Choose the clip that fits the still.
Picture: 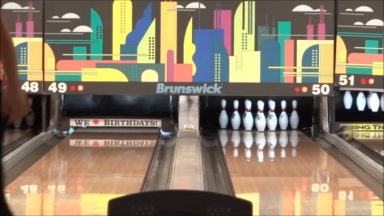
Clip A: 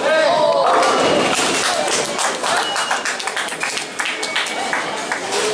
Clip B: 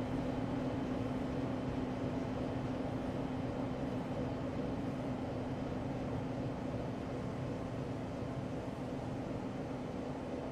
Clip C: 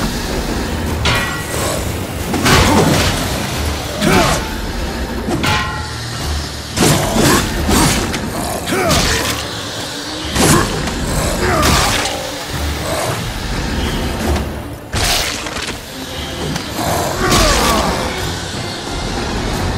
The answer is A